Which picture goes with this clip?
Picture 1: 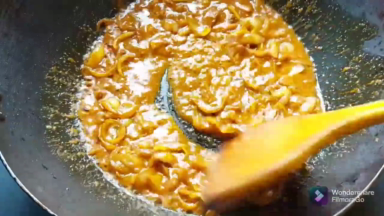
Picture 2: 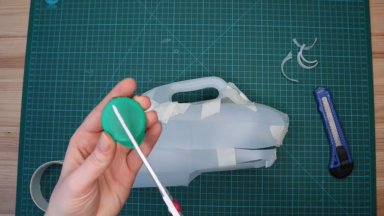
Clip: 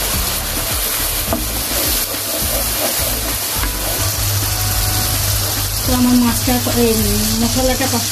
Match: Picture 1